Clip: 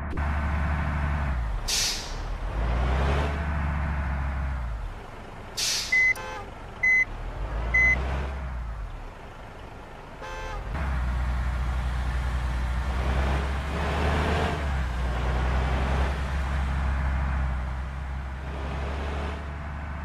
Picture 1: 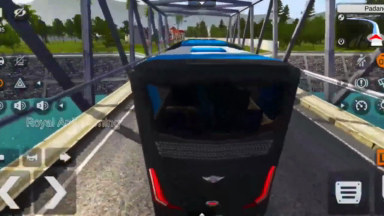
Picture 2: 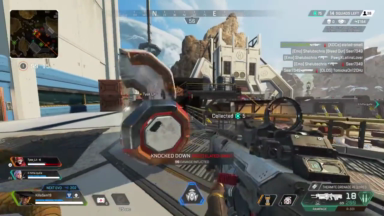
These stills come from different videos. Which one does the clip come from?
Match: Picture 1